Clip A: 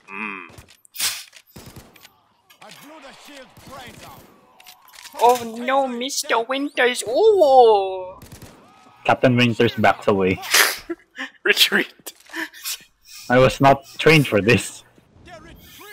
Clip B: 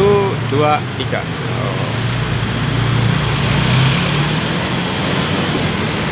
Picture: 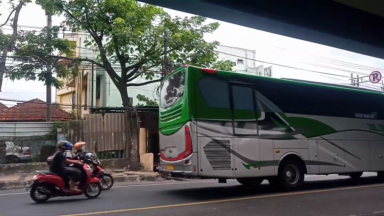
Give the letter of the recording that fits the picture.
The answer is B